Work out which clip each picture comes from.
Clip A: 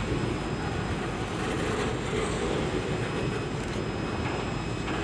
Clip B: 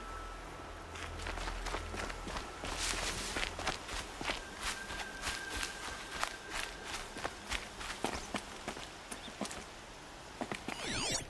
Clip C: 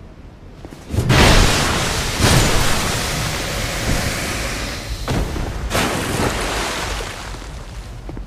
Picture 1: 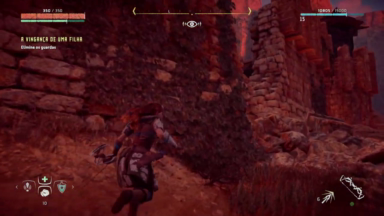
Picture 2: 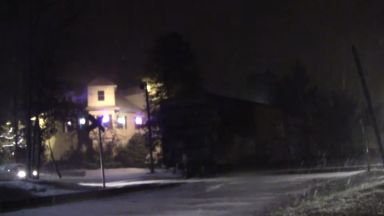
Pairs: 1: B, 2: A